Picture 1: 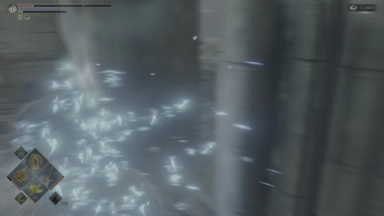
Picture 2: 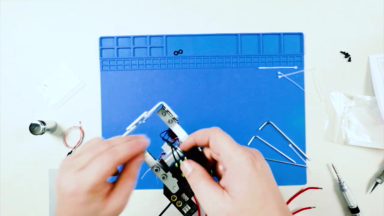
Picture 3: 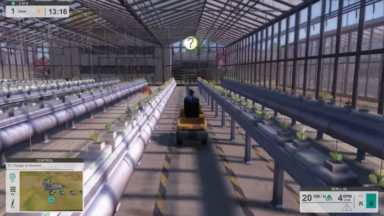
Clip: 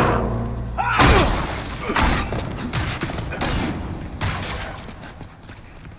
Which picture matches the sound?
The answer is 1